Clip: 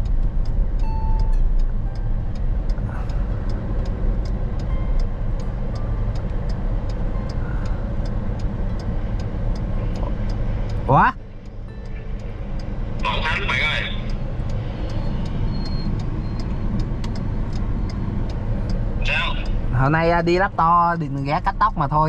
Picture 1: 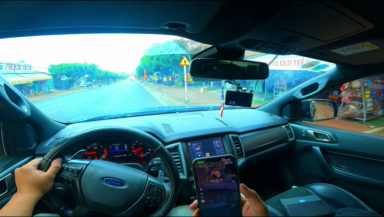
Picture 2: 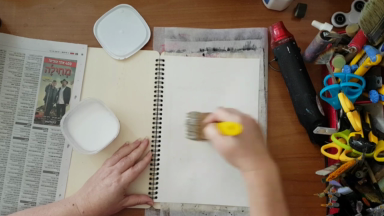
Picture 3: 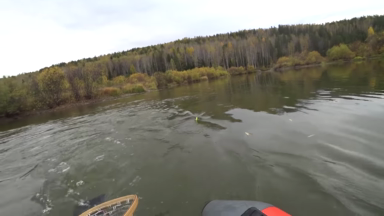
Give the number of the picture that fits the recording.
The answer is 1